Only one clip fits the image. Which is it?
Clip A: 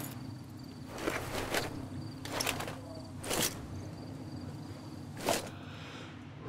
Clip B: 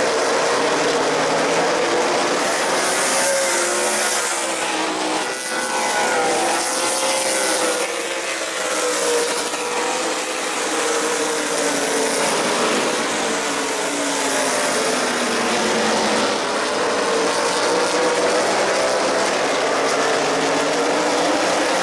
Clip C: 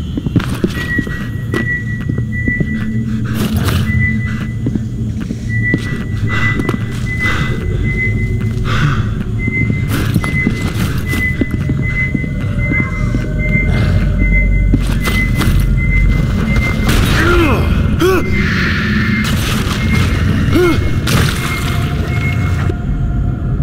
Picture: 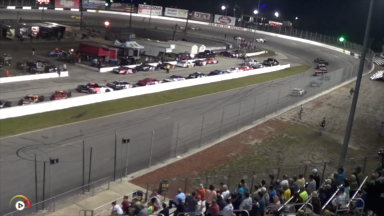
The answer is B